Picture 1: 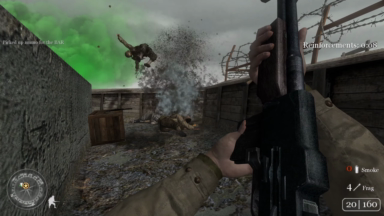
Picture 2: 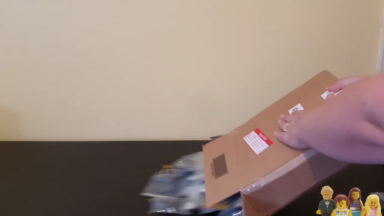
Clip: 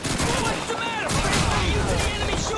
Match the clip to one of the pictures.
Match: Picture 1